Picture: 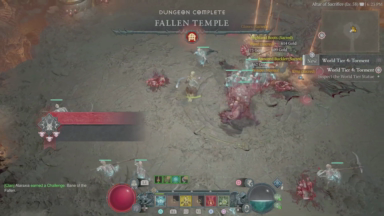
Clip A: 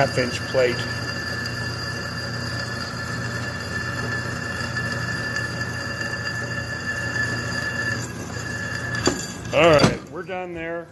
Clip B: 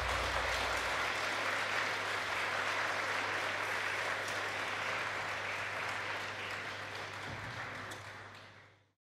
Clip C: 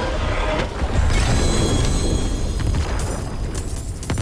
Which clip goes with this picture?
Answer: C